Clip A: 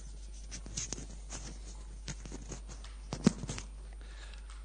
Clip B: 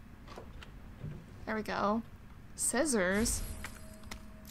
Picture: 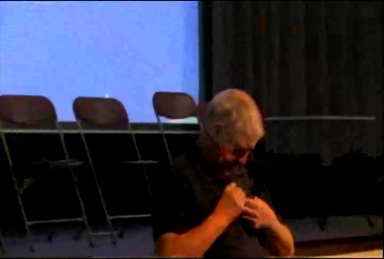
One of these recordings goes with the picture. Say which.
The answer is A